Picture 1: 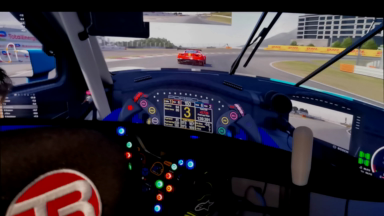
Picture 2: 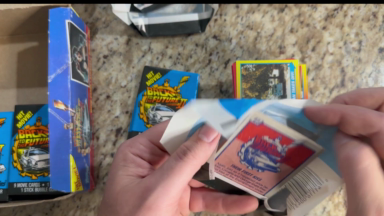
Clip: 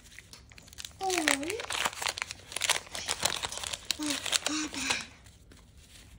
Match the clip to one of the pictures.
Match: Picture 2